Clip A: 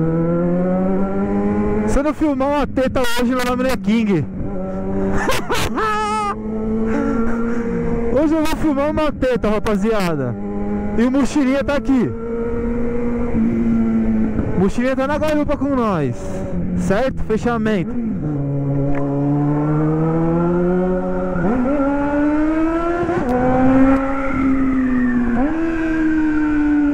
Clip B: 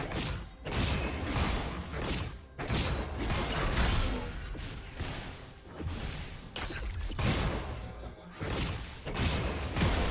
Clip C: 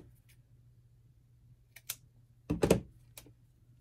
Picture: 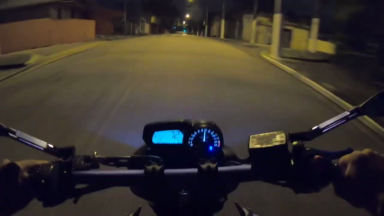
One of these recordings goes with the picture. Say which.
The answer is A